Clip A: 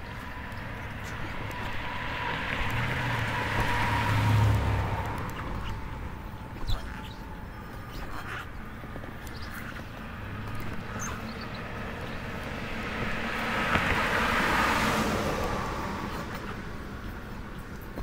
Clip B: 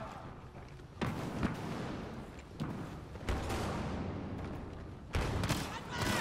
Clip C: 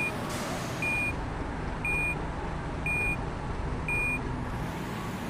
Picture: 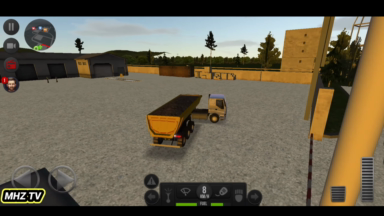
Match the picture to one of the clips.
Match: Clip C